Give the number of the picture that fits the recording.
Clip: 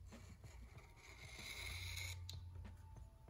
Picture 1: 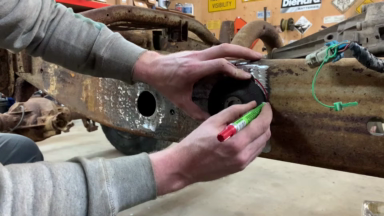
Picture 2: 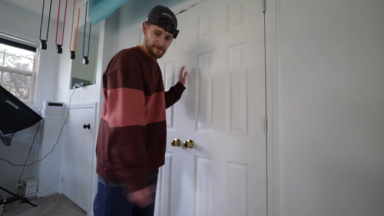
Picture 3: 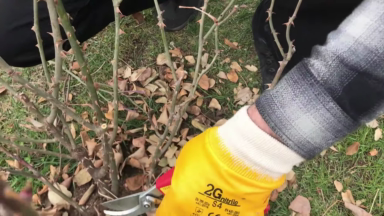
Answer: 1